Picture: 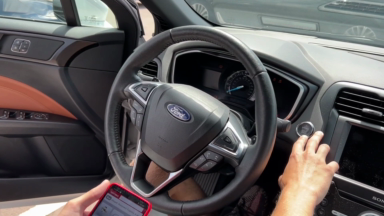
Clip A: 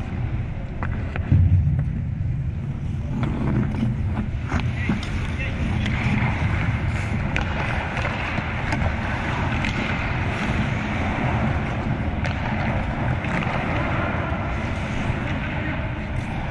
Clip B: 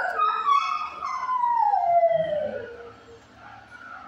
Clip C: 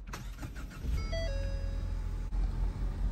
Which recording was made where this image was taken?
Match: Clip C